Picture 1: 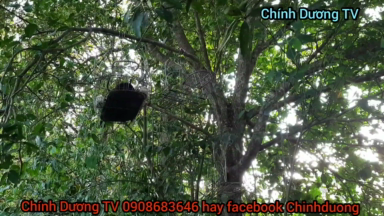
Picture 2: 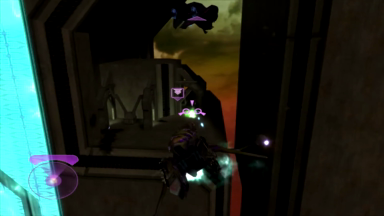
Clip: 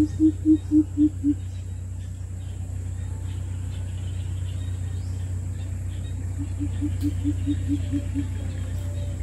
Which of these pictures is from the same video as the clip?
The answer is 1